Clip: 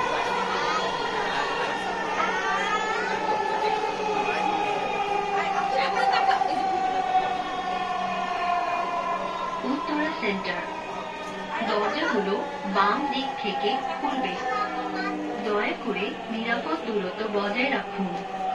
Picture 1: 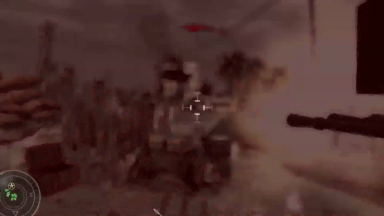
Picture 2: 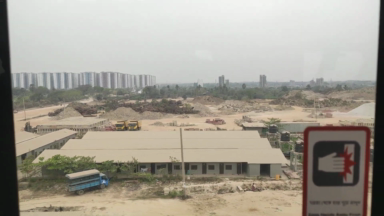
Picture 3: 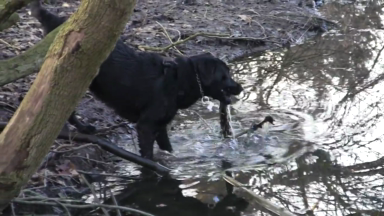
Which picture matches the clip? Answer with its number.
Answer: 2